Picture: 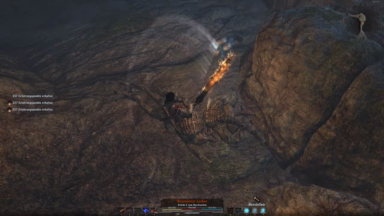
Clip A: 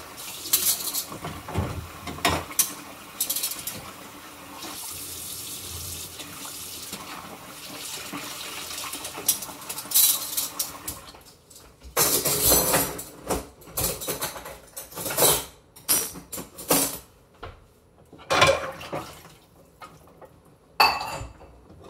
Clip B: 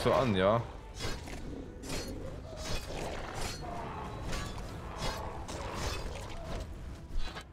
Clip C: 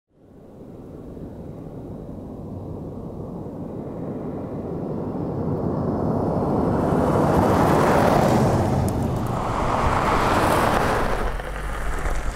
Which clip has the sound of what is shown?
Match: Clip B